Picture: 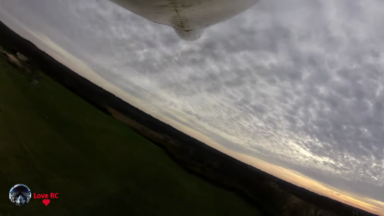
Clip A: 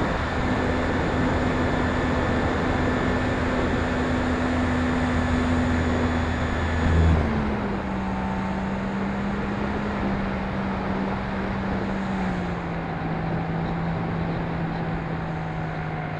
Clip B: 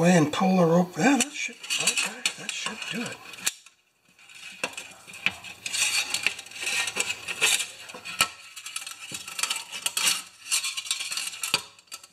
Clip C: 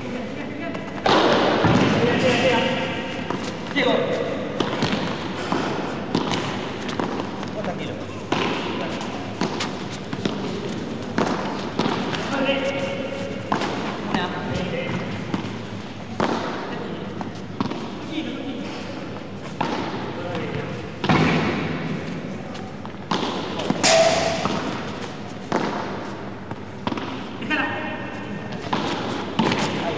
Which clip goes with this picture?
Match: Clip A